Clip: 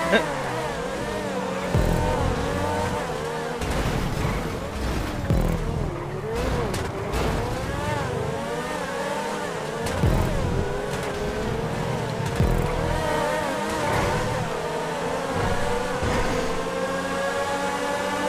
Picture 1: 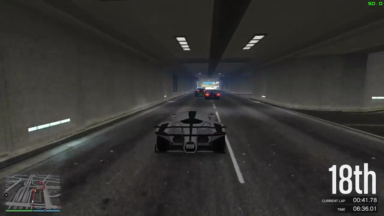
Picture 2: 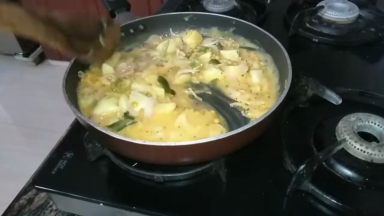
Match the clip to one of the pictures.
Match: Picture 1